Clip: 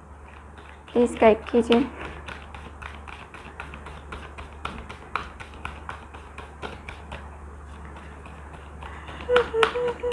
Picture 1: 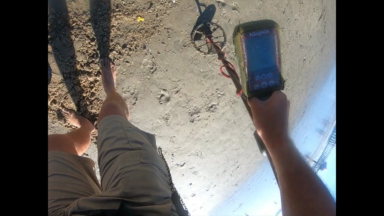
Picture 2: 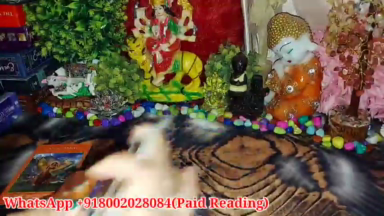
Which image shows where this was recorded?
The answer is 2